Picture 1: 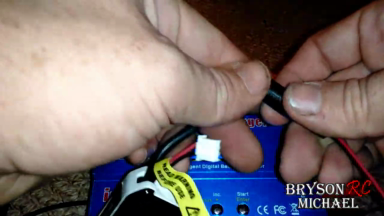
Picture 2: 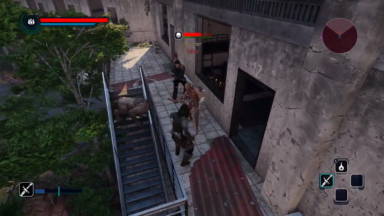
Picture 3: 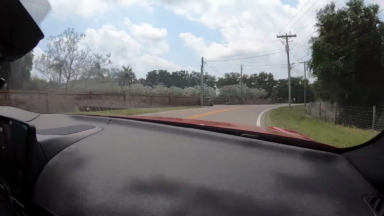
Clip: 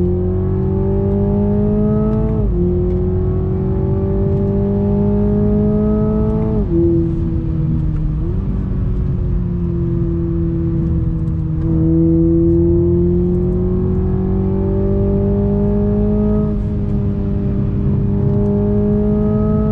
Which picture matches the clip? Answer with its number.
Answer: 3